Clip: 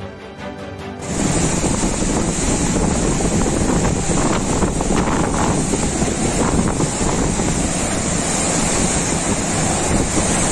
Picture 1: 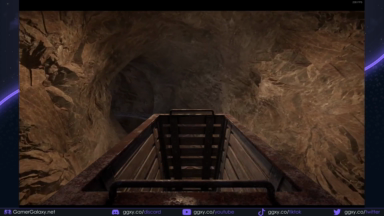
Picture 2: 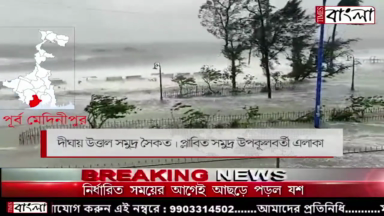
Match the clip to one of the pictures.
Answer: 2